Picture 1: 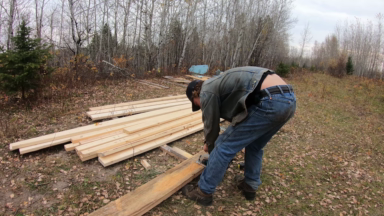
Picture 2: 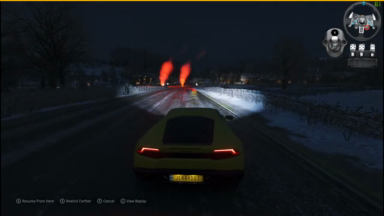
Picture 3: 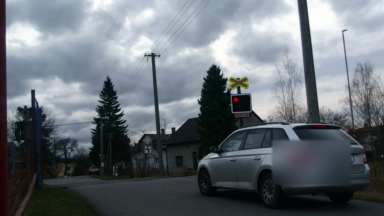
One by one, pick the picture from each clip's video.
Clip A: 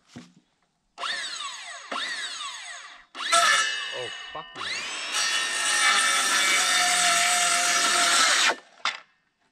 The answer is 1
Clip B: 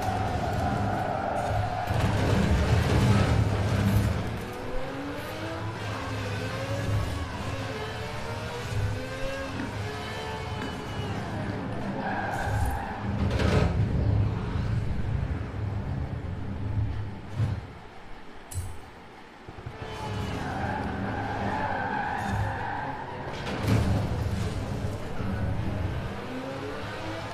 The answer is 2